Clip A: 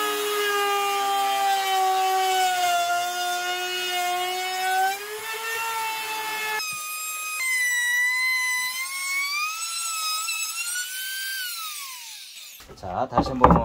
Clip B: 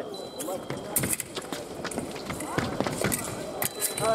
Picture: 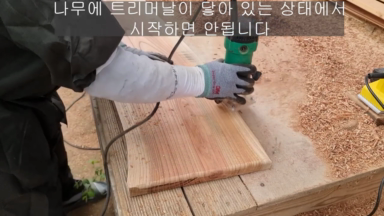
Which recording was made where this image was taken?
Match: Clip A